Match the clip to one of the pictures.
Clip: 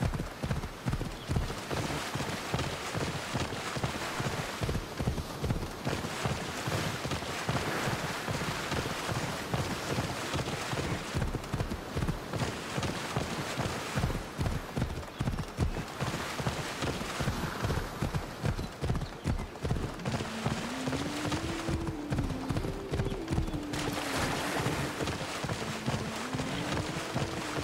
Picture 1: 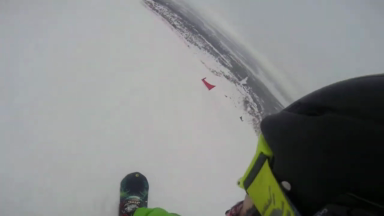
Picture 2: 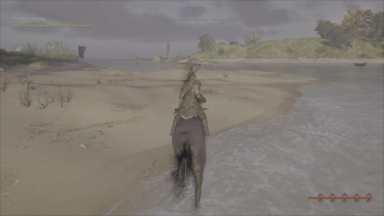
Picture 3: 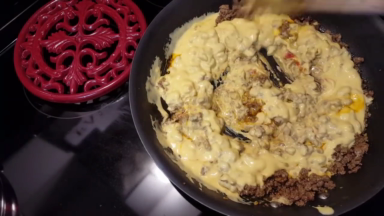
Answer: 2